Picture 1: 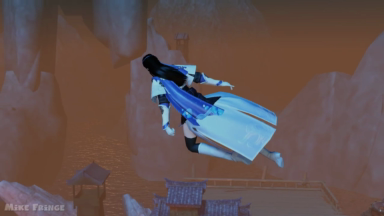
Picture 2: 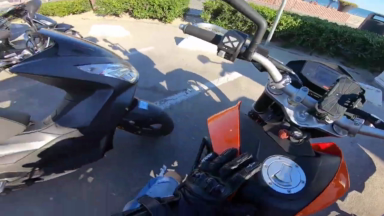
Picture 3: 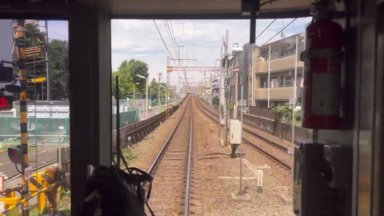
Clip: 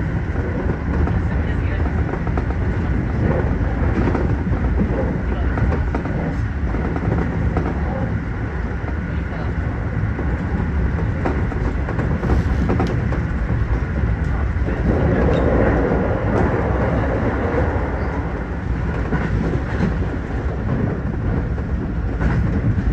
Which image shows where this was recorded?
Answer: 3